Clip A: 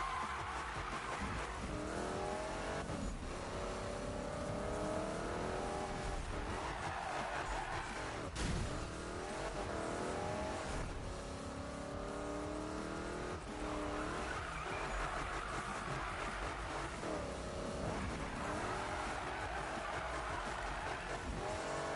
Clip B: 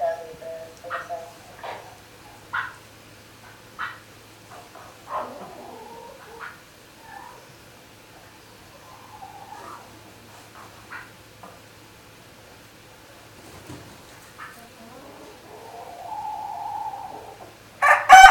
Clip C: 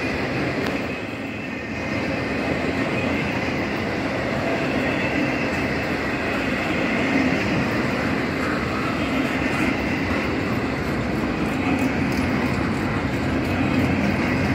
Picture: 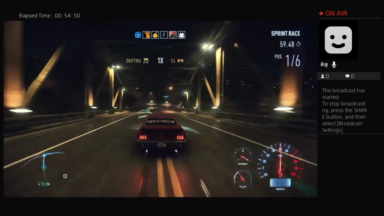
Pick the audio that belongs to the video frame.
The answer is A